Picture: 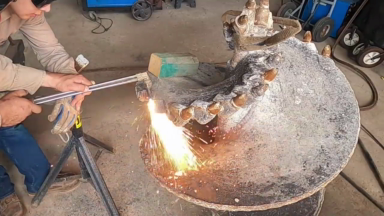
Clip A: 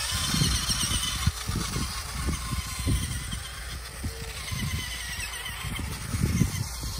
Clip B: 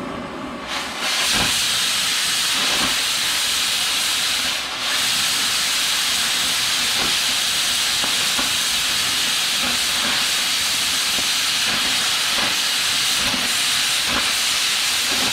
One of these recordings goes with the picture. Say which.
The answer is B